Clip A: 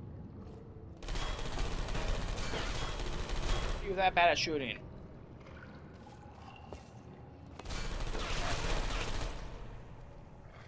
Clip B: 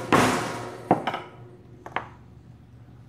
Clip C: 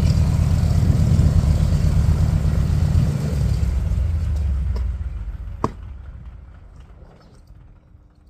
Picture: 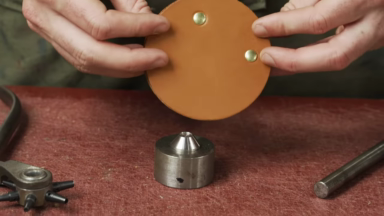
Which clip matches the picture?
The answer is B